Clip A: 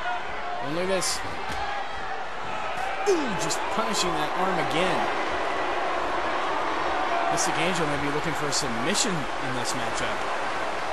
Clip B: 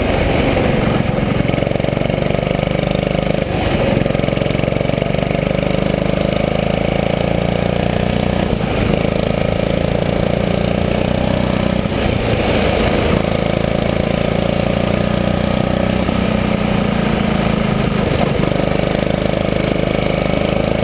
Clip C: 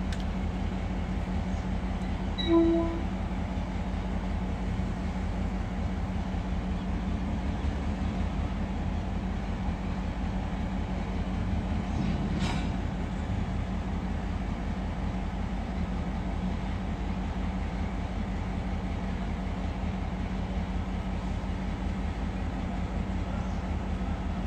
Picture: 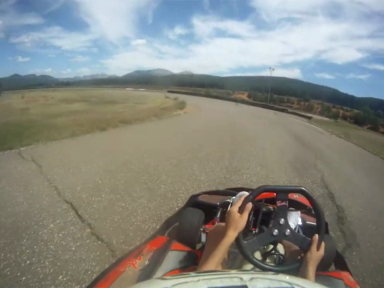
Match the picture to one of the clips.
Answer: B